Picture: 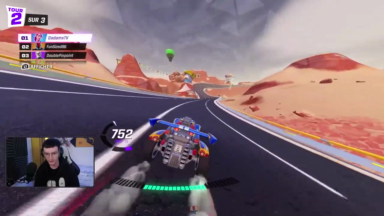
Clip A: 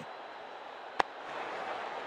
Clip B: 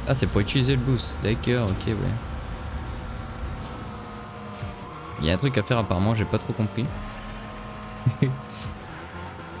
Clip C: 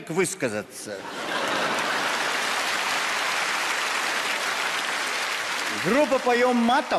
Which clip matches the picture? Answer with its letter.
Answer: B